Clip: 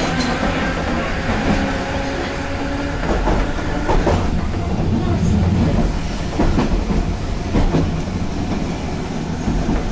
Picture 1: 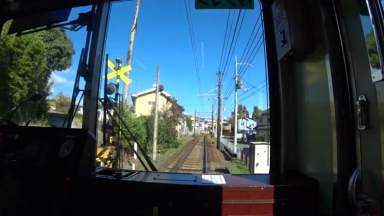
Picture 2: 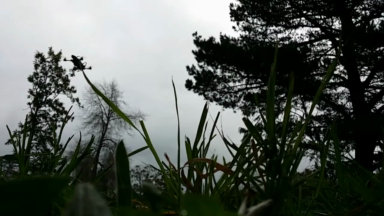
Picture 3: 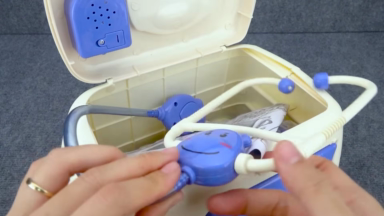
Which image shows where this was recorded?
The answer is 1